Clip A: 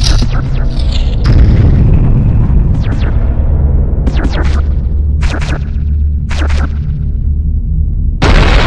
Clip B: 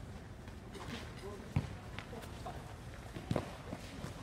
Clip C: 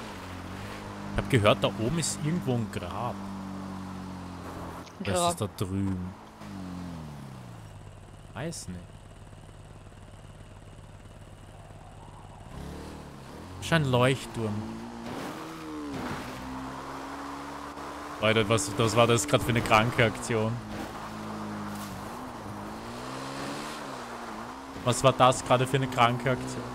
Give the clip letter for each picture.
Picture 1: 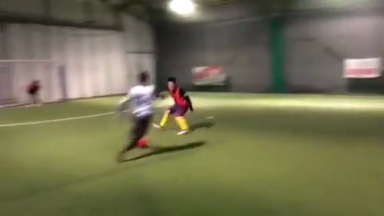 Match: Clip B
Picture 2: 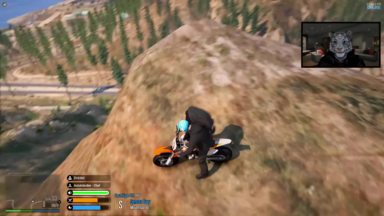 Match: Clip C